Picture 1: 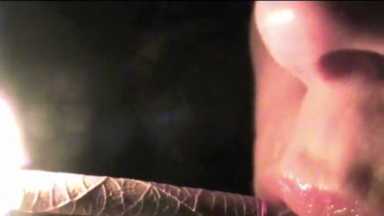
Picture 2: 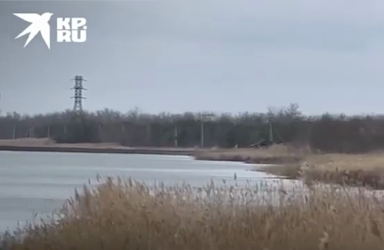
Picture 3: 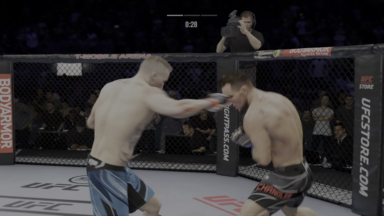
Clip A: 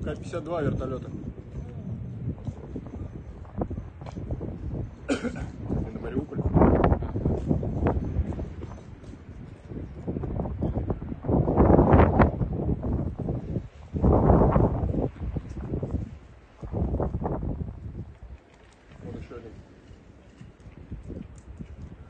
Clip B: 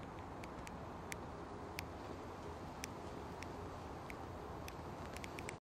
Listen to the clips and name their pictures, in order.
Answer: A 2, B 1